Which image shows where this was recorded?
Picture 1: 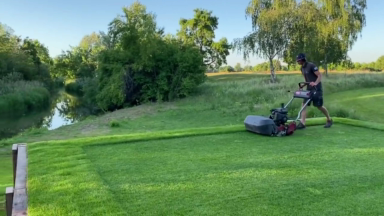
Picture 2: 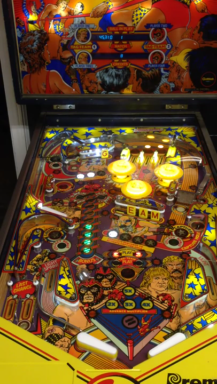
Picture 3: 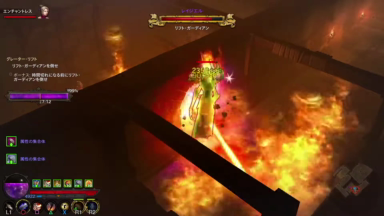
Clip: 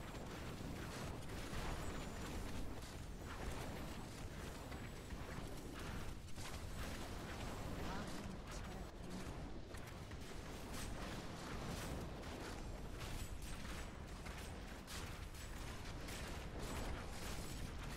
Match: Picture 3